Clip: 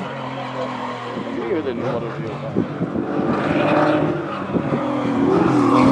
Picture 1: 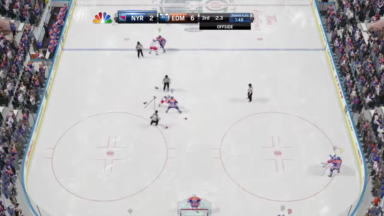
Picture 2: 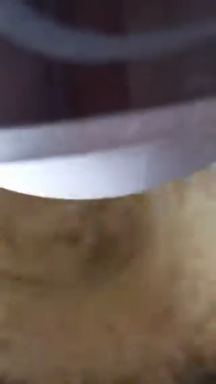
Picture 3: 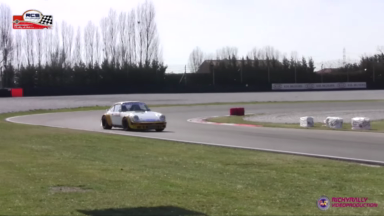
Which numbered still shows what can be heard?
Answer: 3